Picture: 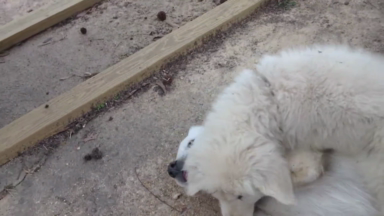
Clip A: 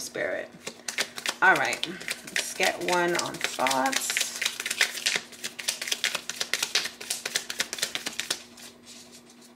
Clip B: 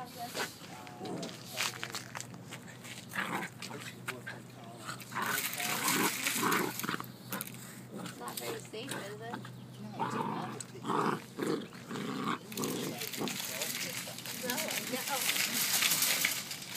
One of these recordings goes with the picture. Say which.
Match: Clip B